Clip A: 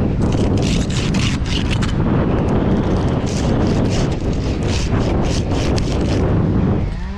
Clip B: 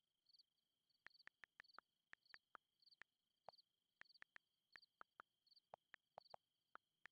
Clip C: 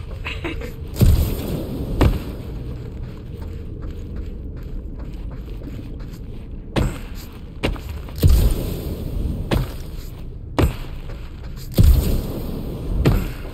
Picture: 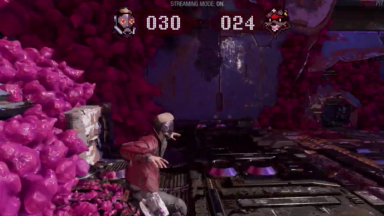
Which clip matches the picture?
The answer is C